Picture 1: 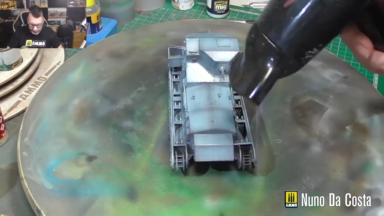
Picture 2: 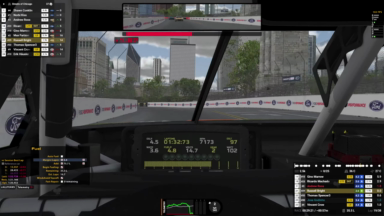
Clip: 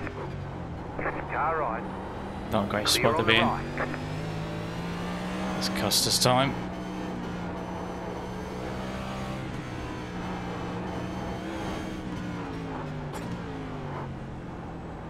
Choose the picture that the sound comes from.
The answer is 2